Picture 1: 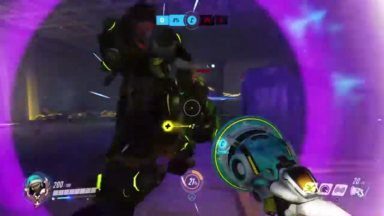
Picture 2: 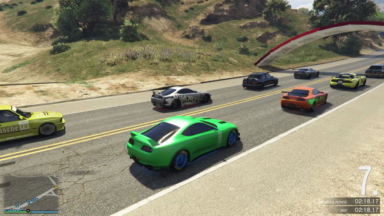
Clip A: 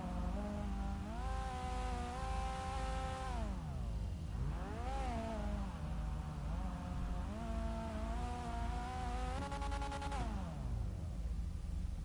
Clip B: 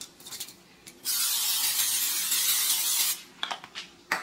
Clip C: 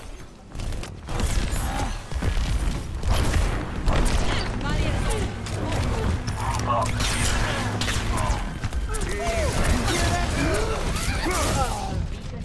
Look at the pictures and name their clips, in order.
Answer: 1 C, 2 A